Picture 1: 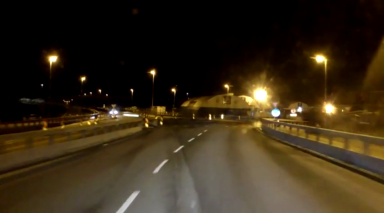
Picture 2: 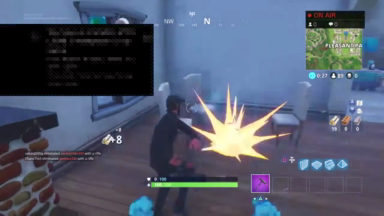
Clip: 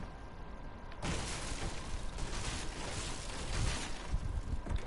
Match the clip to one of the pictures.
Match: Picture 2